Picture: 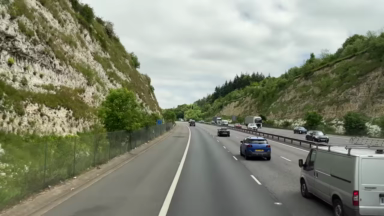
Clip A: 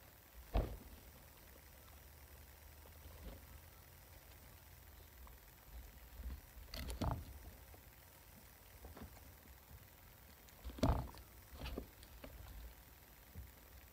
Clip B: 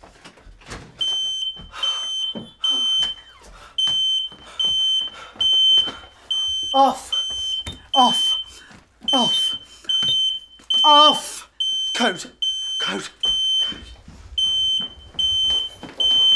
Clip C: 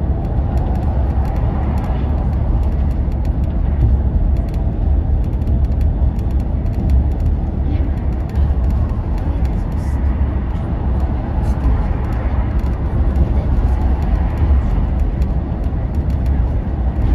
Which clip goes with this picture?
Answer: C